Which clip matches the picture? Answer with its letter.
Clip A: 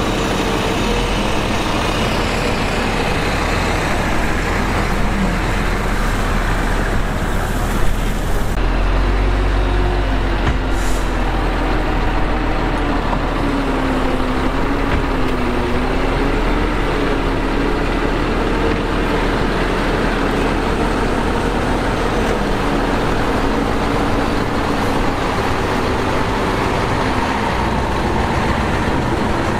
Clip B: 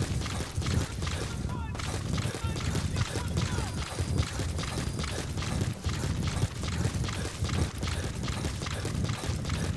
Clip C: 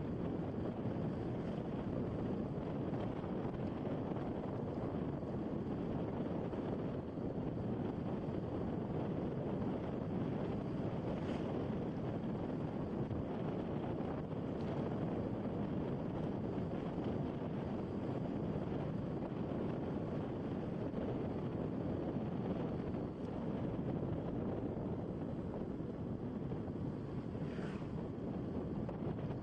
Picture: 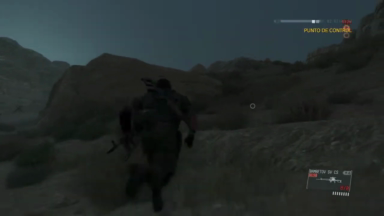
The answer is B